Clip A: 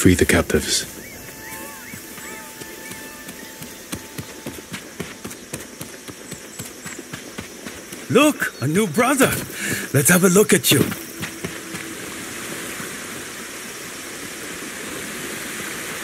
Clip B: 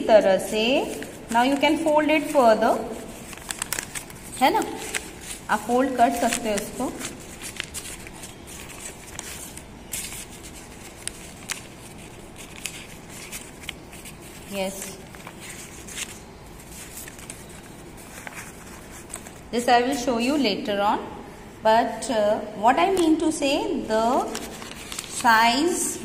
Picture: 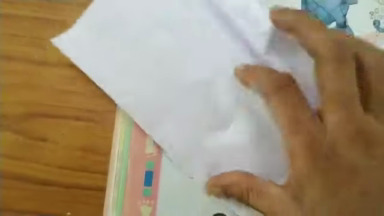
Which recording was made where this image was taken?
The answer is B